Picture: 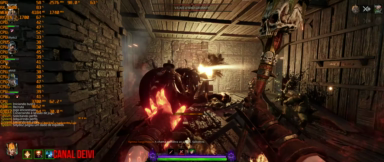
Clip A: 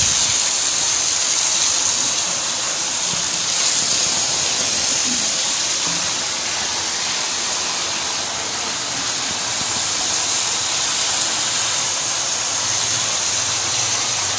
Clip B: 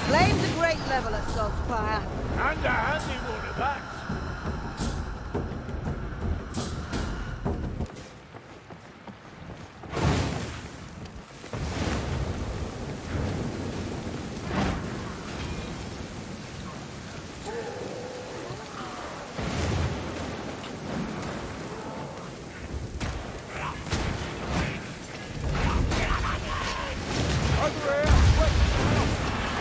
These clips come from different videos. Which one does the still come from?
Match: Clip B